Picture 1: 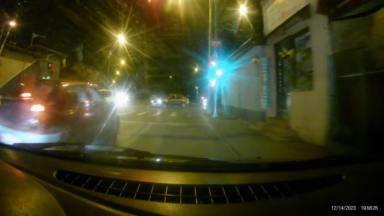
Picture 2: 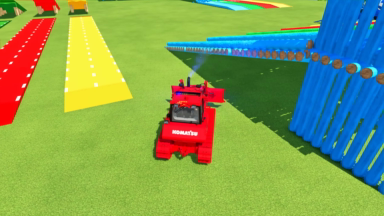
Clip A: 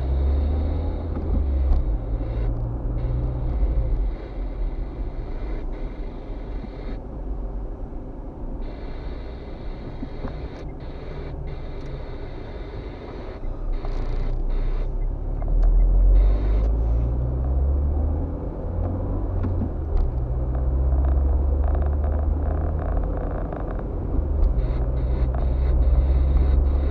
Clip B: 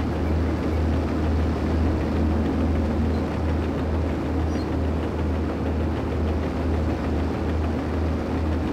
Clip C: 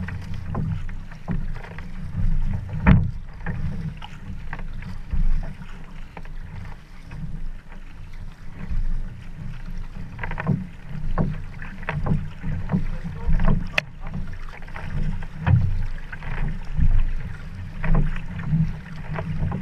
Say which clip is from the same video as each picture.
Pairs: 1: A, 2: B